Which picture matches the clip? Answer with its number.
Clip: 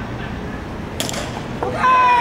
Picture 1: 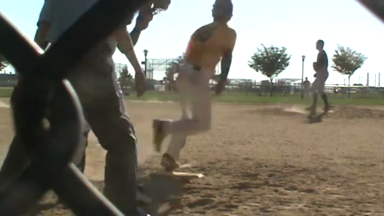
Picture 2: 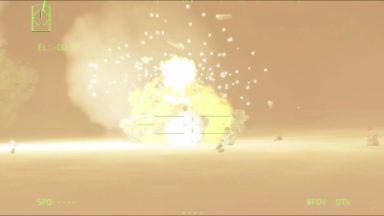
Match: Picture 1